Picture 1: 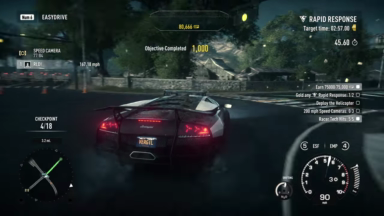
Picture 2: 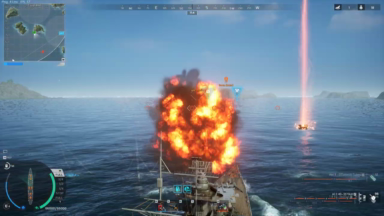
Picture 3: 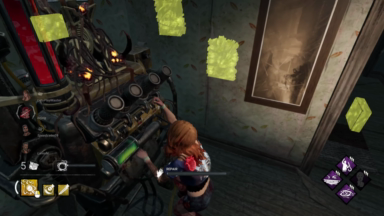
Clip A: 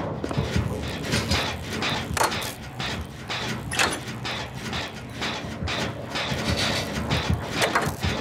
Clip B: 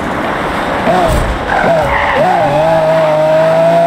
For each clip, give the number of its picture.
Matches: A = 3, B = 1